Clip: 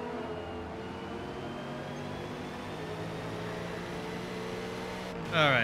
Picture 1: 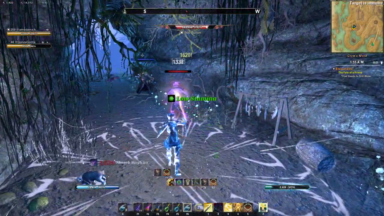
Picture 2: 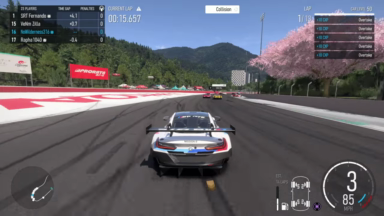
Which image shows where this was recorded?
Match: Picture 2